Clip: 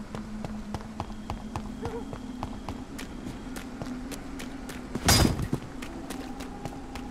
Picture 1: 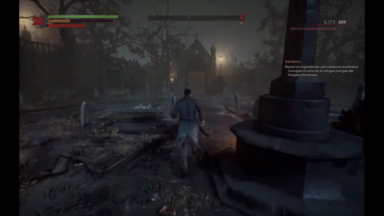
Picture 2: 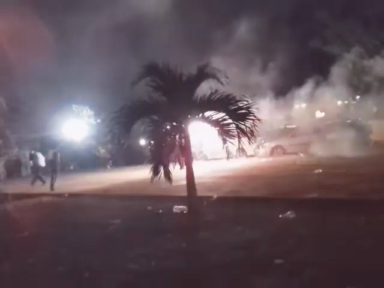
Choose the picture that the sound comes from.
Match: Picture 1